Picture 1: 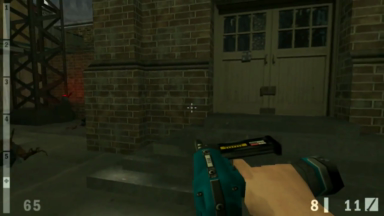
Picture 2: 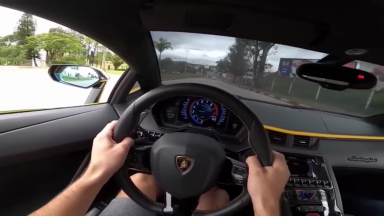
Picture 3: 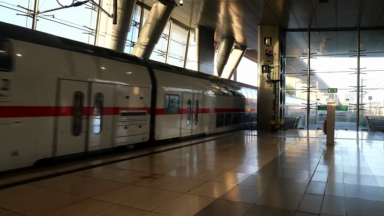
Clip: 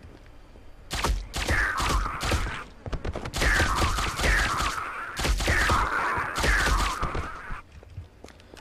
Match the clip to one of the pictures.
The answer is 1